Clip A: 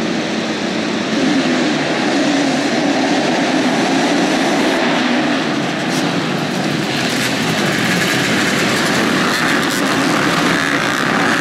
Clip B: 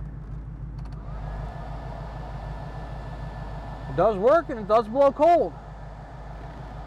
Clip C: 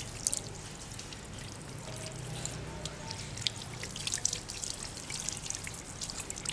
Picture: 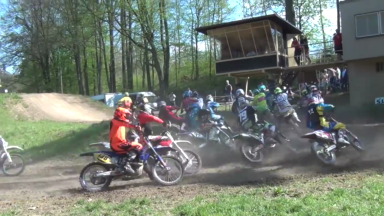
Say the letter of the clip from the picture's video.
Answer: A